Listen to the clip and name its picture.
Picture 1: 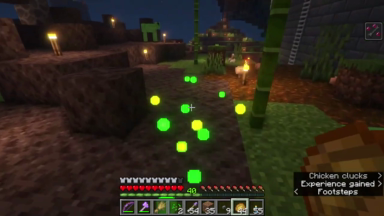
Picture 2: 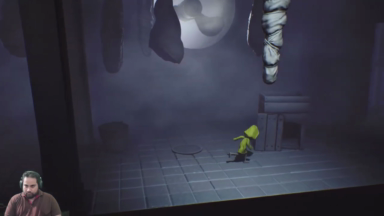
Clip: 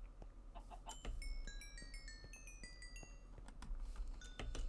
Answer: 1